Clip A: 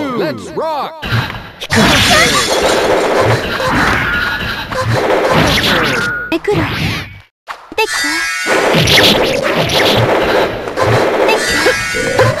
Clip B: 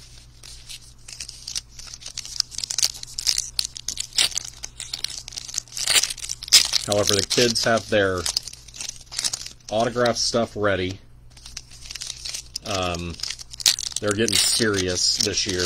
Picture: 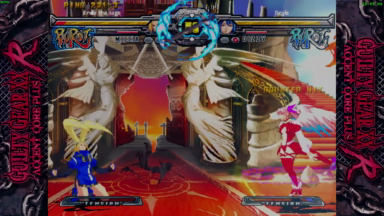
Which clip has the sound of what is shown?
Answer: A